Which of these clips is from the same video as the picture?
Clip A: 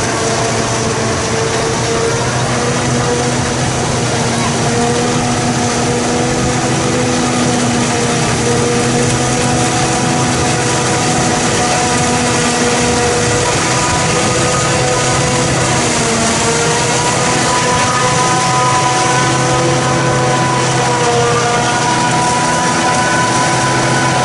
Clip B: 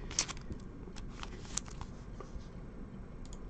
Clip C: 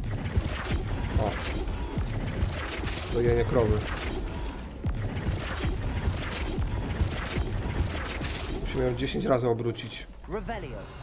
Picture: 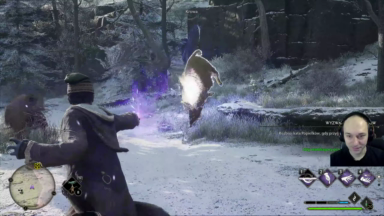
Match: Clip C